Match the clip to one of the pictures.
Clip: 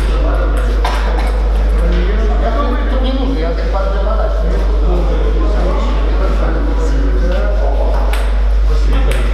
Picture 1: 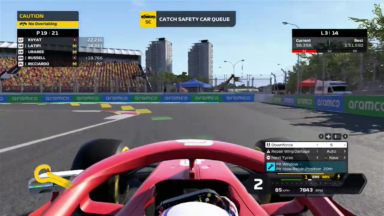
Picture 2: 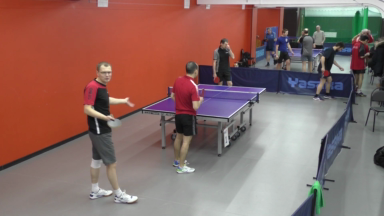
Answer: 2